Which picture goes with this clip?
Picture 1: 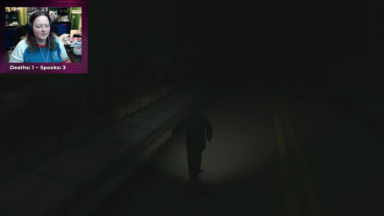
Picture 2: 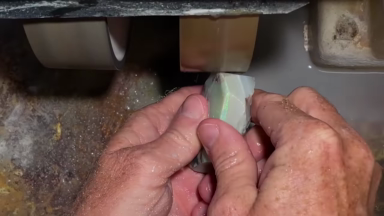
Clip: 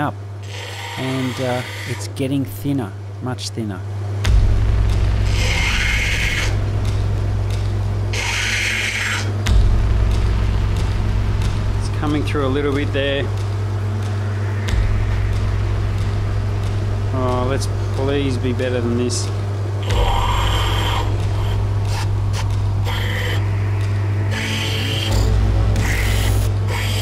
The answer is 2